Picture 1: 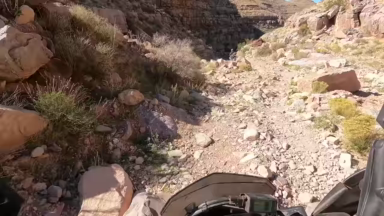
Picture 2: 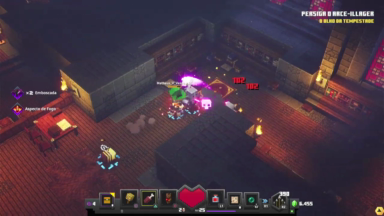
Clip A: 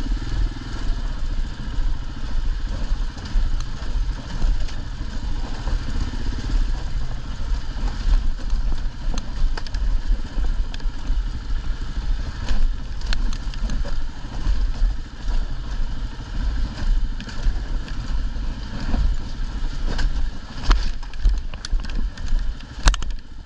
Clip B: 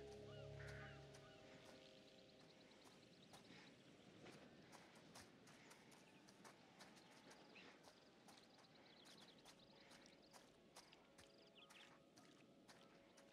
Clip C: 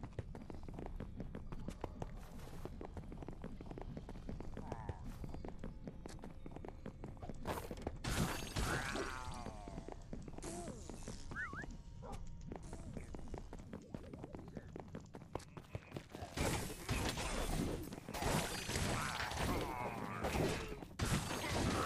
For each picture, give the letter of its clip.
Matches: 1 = A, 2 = C